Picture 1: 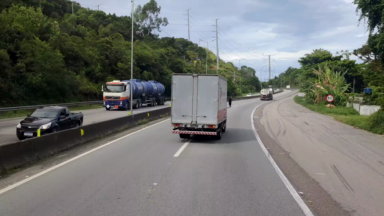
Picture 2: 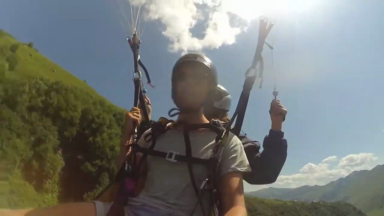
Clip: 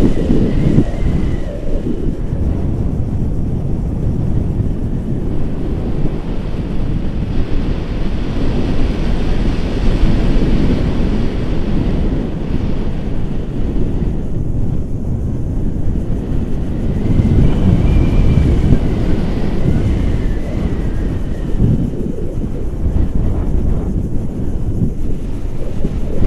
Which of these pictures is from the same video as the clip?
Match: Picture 2